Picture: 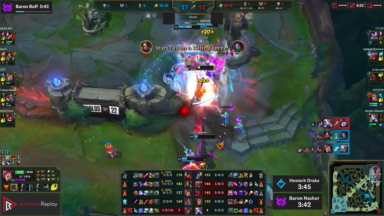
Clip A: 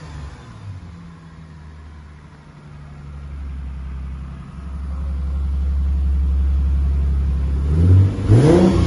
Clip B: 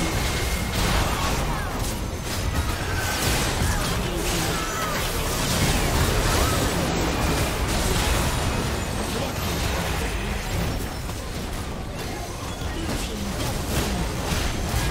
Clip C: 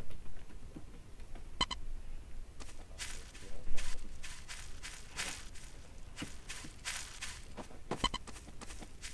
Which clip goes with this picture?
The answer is B